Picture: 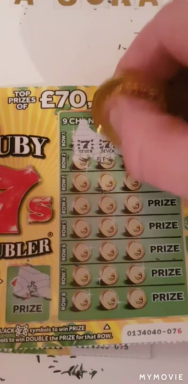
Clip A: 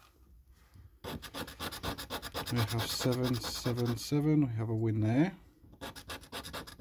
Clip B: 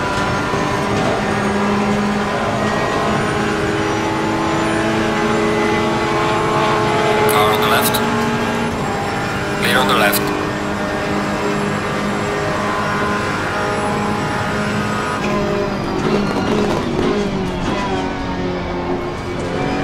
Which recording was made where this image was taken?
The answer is A